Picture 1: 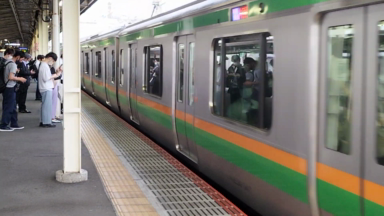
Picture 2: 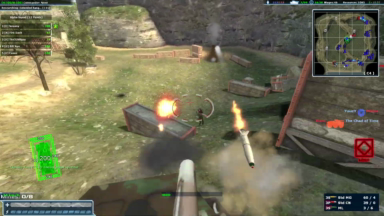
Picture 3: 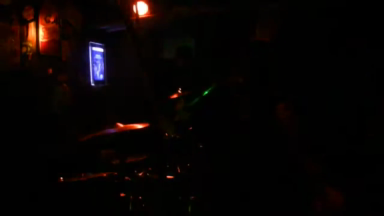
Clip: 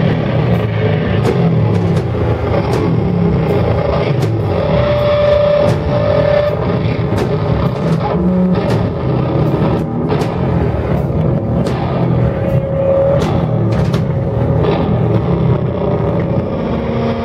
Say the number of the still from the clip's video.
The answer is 3